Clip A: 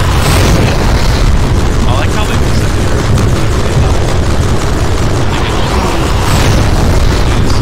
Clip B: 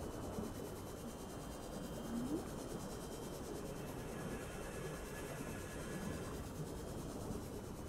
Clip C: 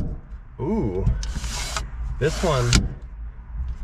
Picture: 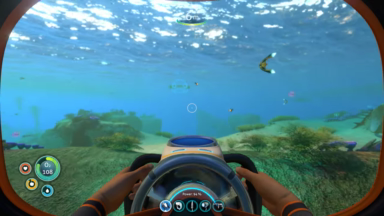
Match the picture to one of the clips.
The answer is B